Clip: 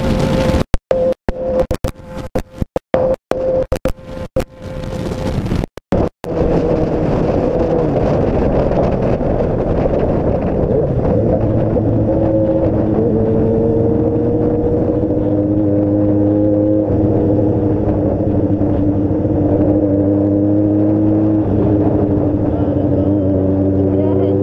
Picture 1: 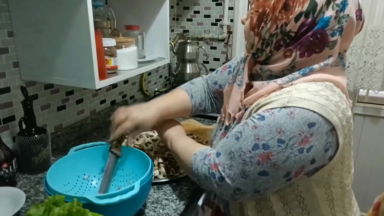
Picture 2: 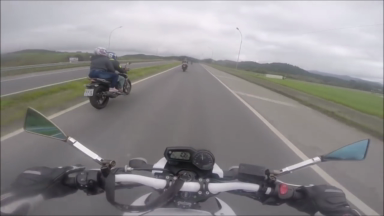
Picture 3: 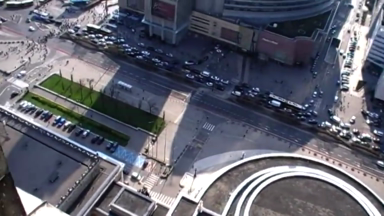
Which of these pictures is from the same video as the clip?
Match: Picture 2